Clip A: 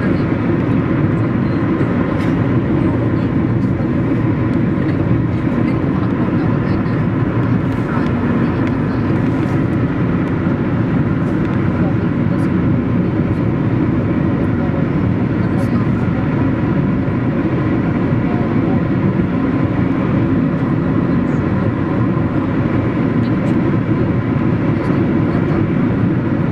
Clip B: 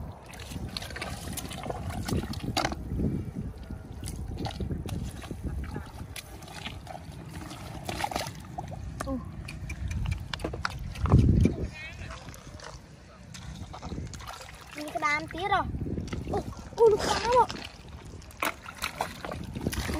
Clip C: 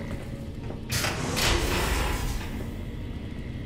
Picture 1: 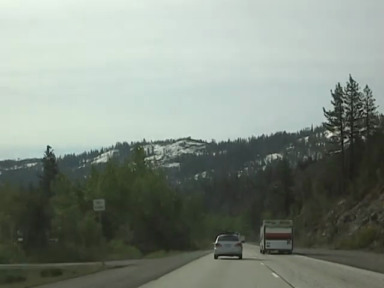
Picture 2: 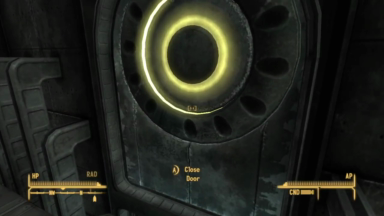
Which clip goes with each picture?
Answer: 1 A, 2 C